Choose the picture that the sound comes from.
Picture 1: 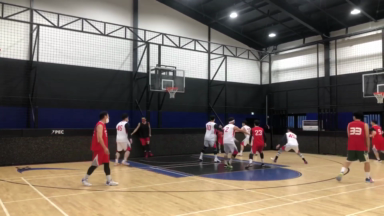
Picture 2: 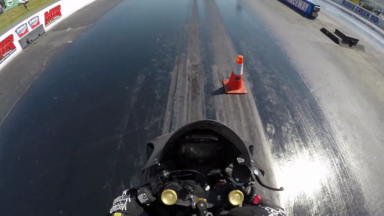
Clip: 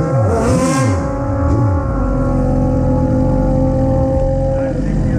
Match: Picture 2